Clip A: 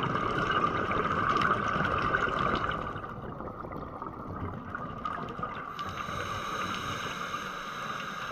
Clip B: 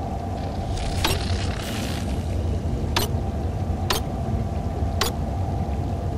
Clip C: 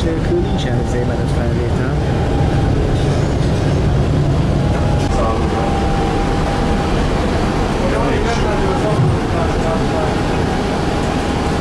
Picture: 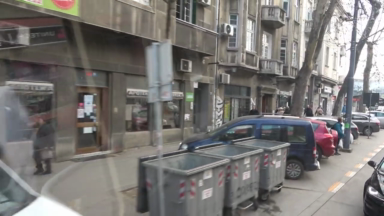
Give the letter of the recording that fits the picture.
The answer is C